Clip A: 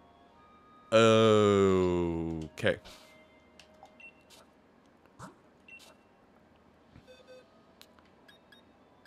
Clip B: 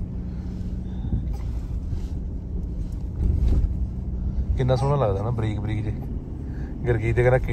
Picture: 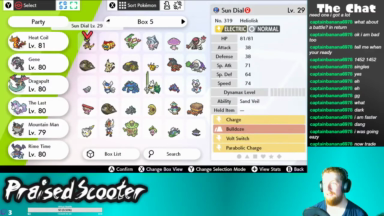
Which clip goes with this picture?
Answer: A